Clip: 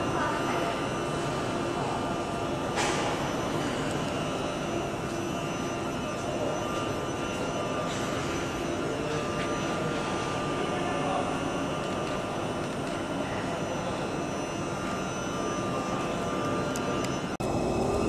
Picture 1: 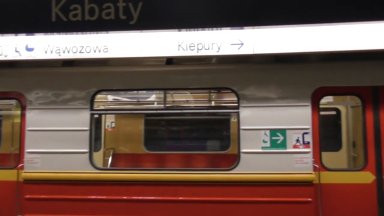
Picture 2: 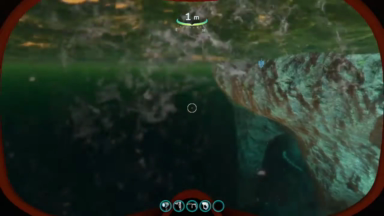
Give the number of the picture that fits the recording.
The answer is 1